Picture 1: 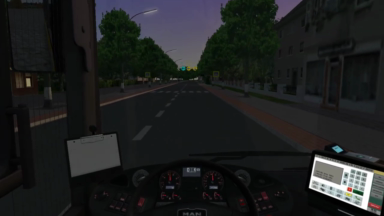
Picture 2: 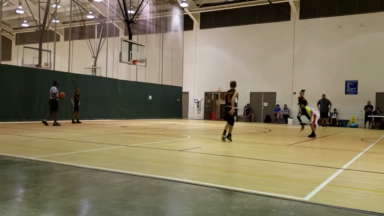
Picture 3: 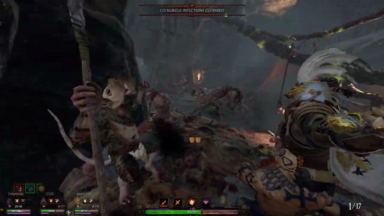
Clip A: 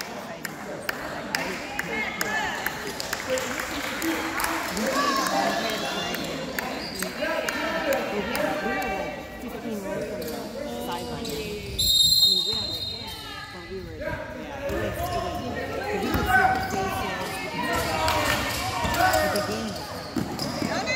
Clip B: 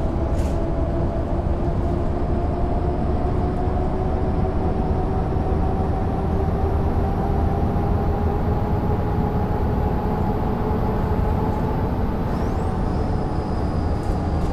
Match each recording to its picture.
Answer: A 2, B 1